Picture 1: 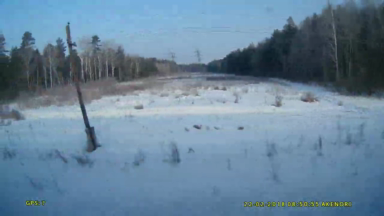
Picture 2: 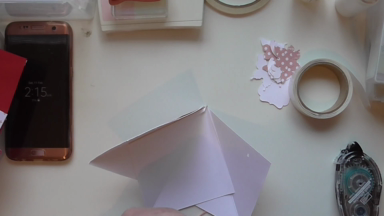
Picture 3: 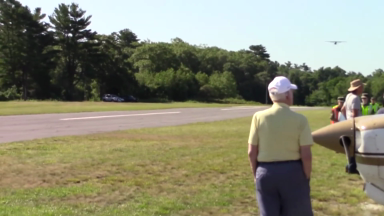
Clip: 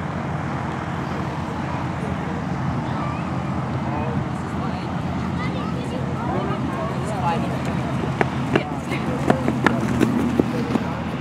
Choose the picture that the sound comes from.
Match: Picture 3